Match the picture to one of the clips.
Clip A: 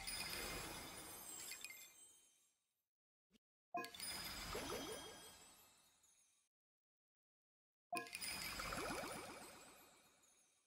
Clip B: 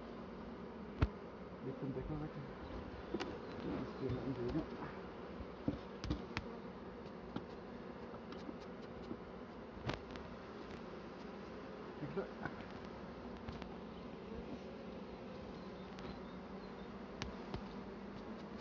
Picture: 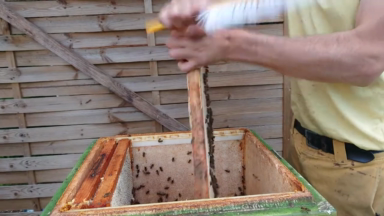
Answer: B